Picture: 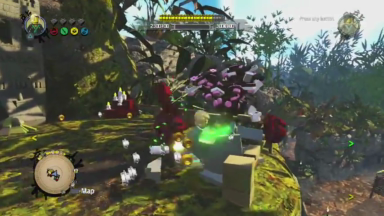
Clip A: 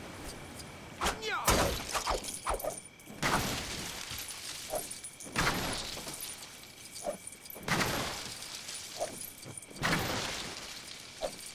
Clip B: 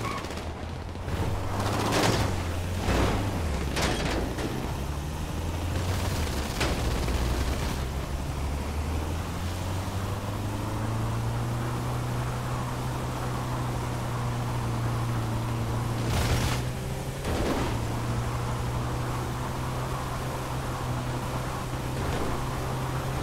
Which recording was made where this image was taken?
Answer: A